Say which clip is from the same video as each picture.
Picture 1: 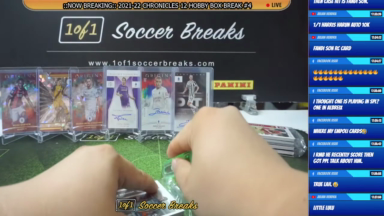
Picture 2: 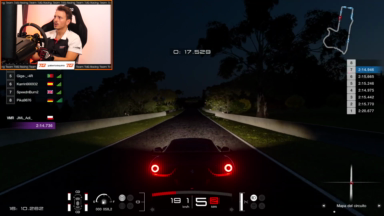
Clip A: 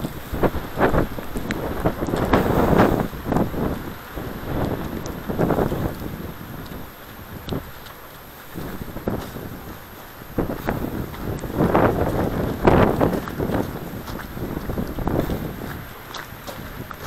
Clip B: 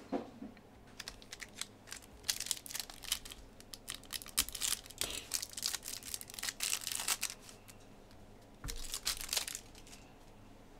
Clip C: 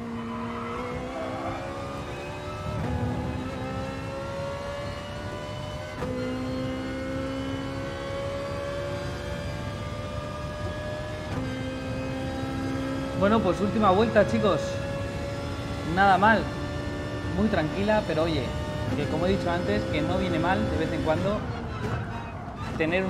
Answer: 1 B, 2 C